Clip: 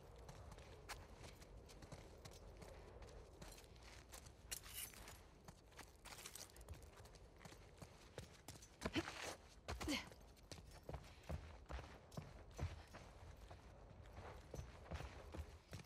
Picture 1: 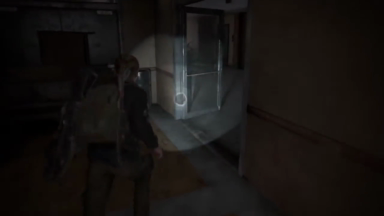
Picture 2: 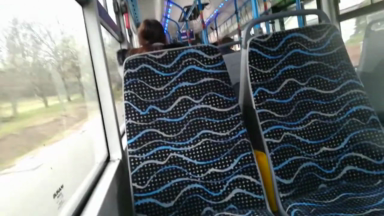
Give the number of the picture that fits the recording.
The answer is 1